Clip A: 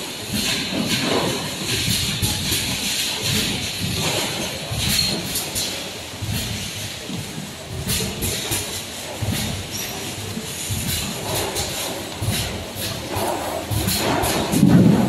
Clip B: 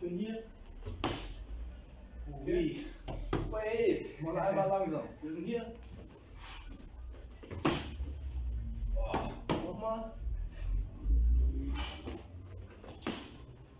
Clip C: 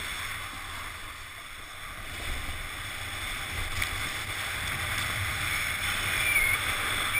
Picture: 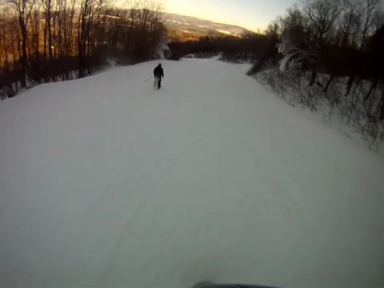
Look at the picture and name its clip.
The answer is C